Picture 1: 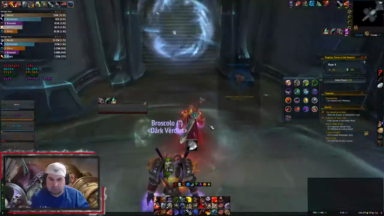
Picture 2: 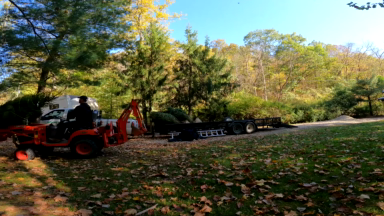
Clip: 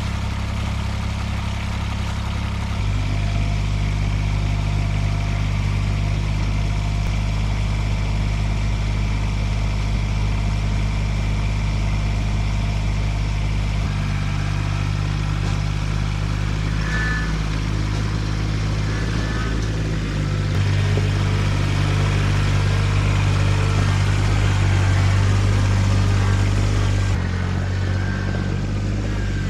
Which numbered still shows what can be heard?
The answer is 2